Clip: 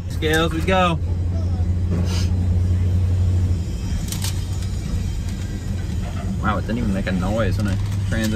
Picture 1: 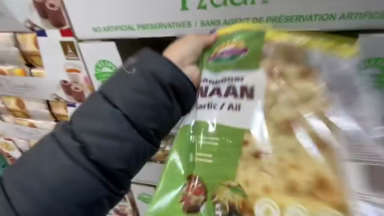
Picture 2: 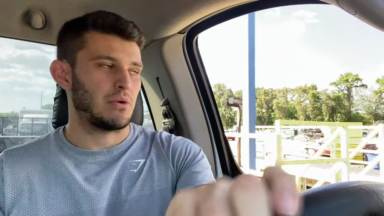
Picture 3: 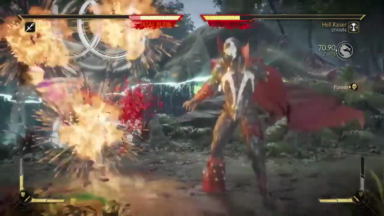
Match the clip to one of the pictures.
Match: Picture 2